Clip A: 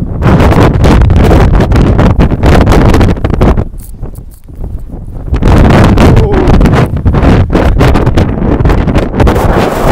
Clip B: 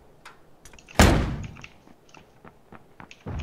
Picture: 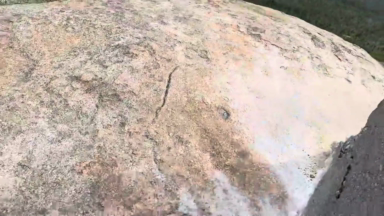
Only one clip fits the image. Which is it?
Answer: A